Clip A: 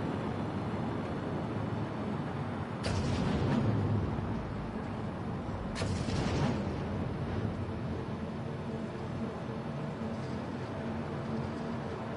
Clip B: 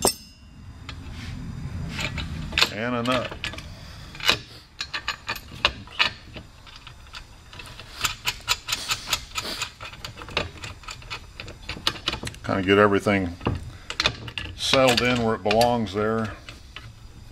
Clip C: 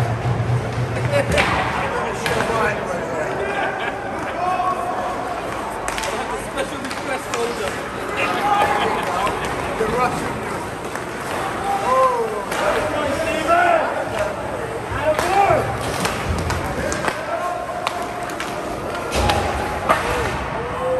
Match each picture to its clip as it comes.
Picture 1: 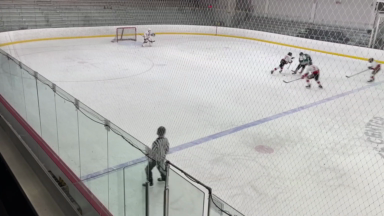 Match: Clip C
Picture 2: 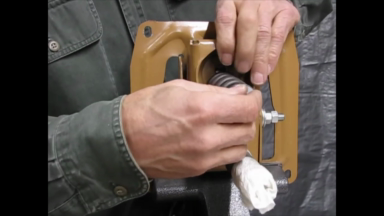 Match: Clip B